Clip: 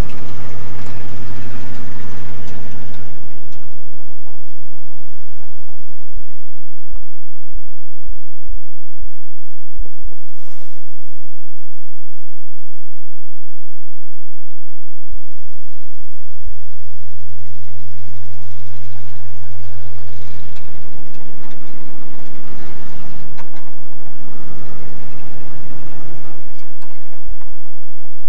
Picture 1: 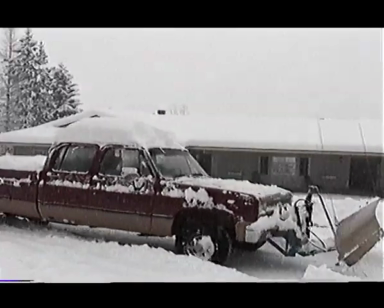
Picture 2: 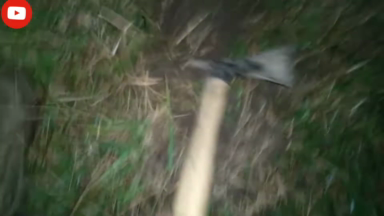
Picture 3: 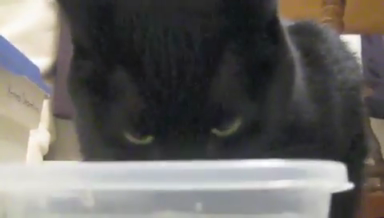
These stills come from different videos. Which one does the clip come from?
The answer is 1